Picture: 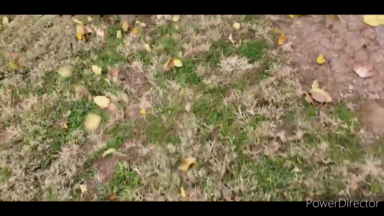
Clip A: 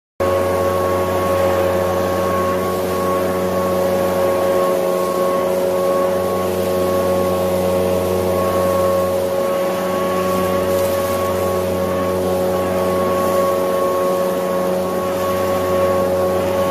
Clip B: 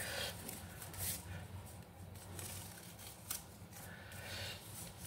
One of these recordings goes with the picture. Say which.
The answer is A